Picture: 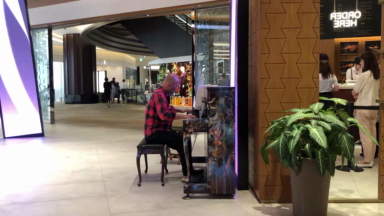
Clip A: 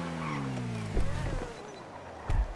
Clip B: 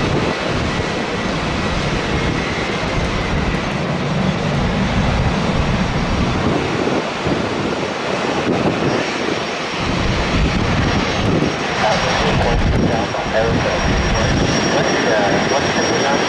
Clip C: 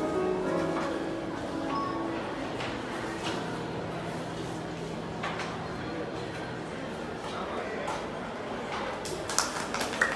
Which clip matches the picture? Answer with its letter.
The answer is C